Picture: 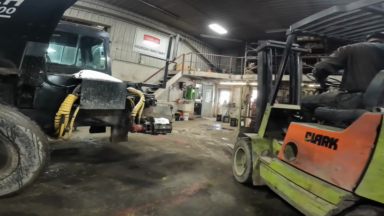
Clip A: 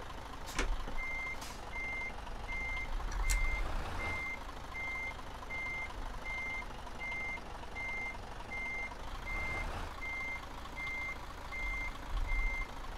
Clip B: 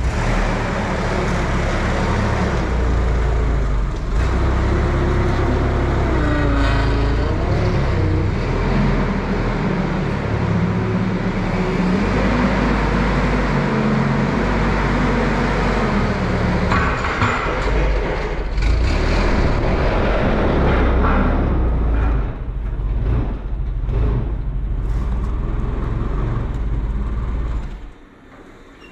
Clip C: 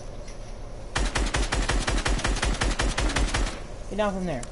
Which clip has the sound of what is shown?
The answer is B